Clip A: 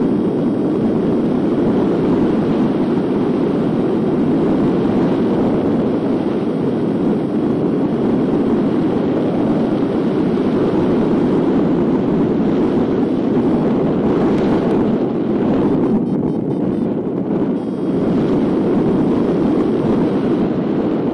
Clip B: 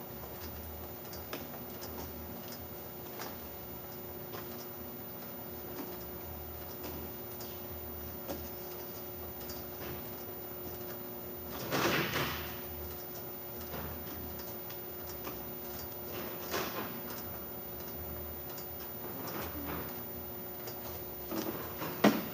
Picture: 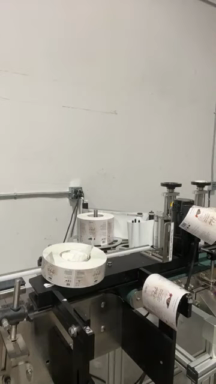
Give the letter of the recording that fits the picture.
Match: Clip B